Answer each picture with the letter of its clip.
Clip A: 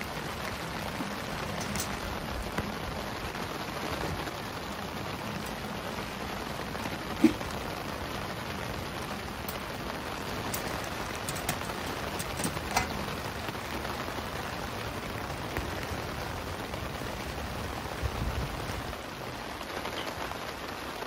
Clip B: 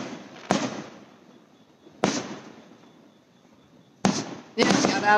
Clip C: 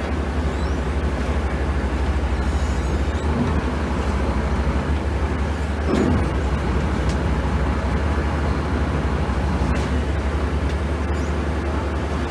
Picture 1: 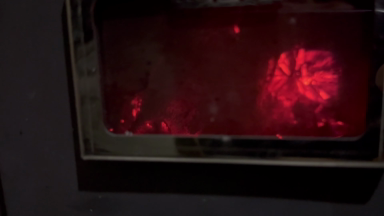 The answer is A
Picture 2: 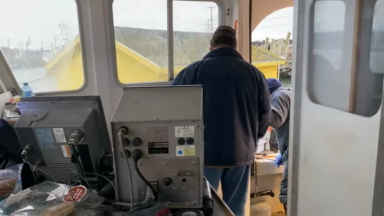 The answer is C